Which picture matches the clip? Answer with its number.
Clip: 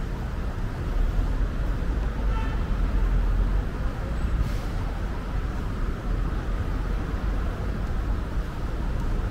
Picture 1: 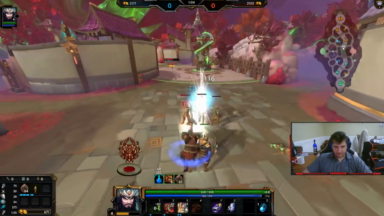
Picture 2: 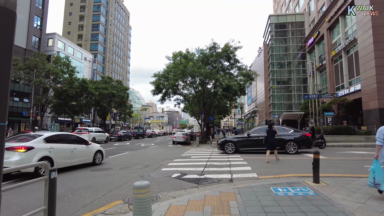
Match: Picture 2